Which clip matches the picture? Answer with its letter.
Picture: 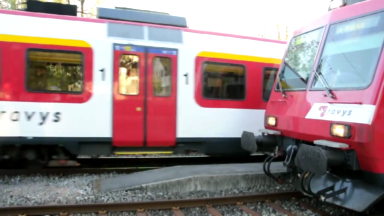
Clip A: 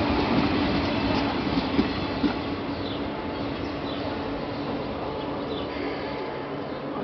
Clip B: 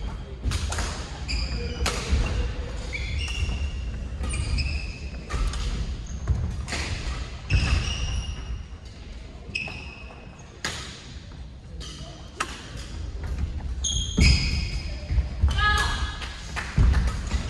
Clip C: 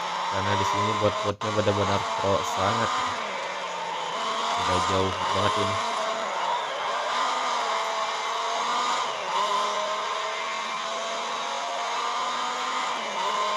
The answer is A